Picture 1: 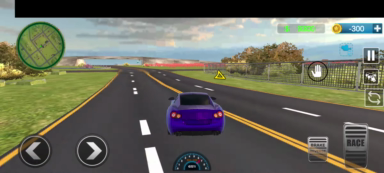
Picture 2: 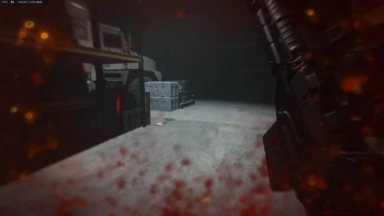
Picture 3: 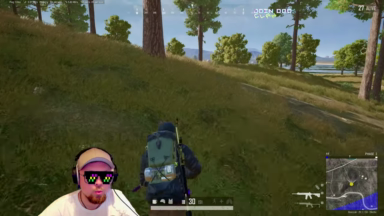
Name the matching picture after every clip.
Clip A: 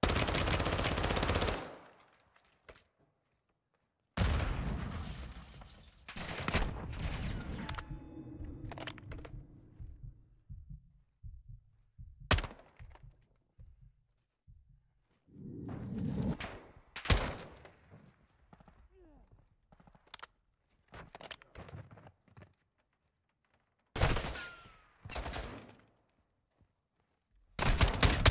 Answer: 2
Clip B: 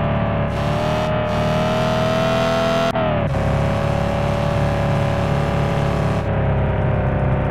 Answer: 1